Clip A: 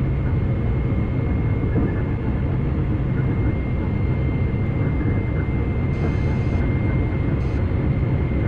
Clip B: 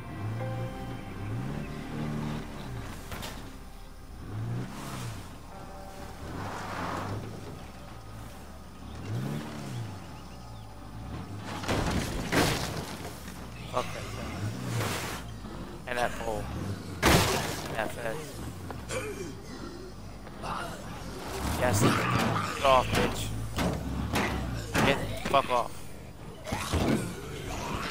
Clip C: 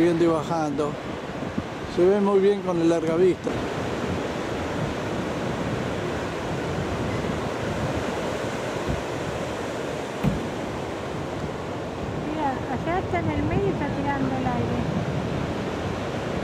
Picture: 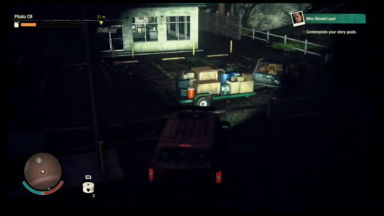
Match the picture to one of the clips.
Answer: B